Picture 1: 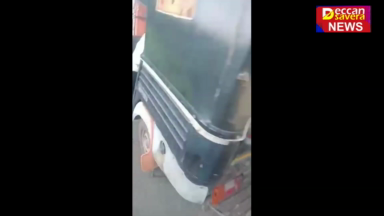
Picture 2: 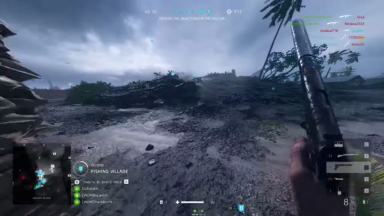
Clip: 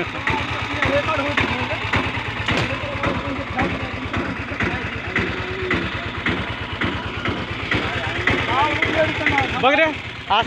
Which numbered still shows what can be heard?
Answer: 1